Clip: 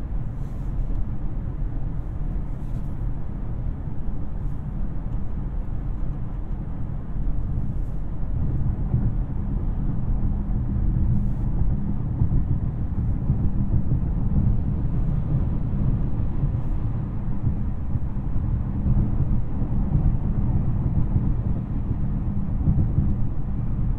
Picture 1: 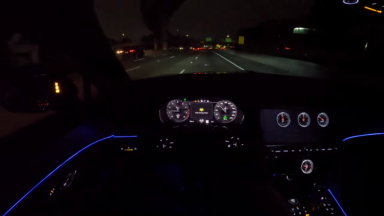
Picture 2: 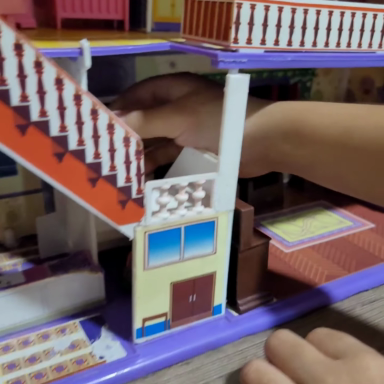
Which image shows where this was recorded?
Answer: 1